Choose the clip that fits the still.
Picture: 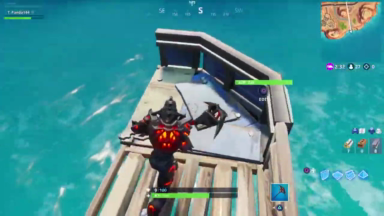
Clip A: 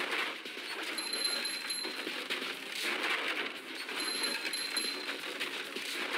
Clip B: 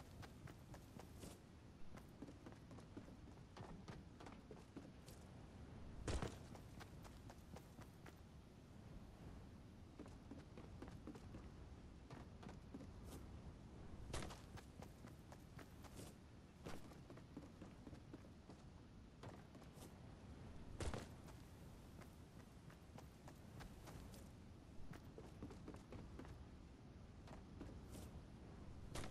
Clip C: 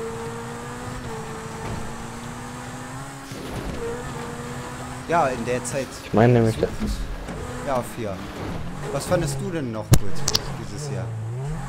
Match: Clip B